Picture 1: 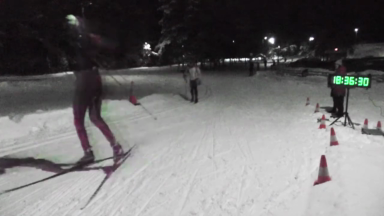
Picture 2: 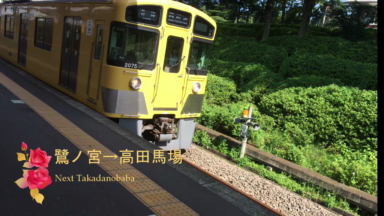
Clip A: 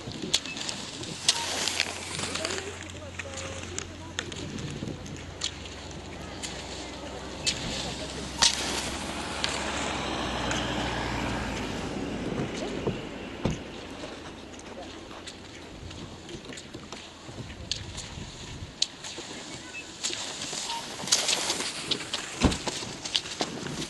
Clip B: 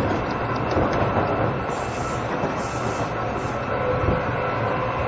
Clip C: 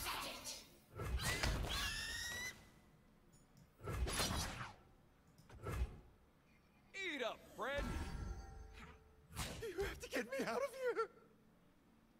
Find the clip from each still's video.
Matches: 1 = A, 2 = B